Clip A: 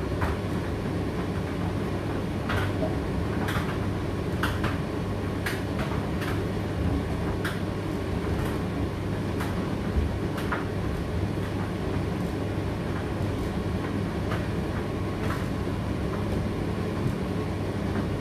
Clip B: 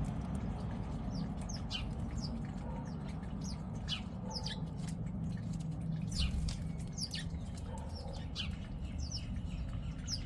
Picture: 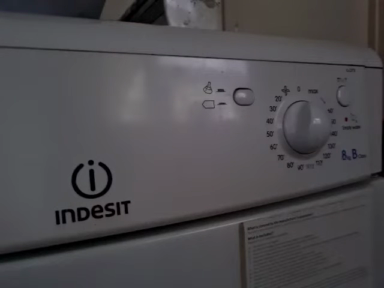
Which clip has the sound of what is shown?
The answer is A